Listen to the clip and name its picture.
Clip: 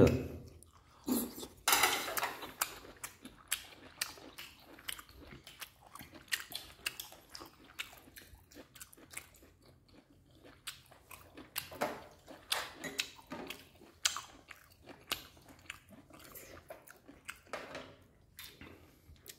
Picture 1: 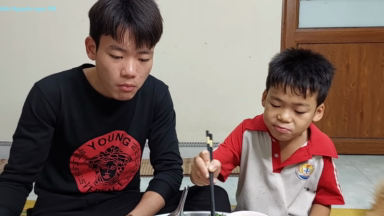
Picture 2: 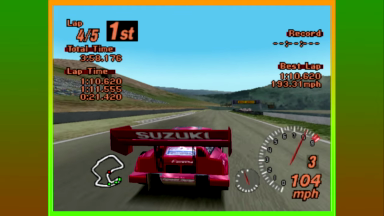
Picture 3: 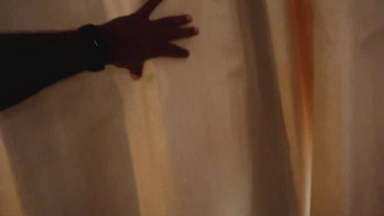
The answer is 1